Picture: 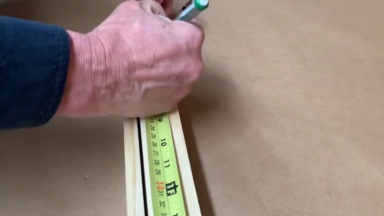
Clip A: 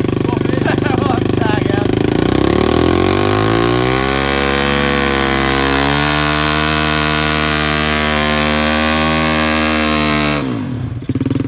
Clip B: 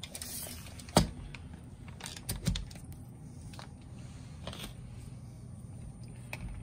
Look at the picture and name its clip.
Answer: B